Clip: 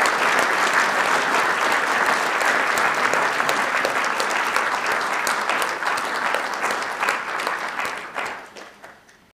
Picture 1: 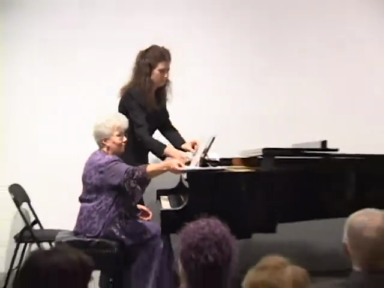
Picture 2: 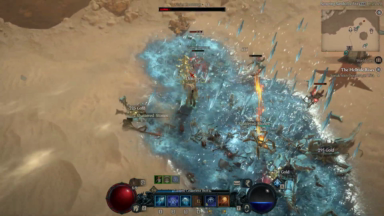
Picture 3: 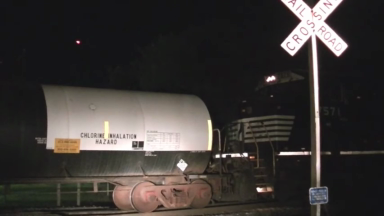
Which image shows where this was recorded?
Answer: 1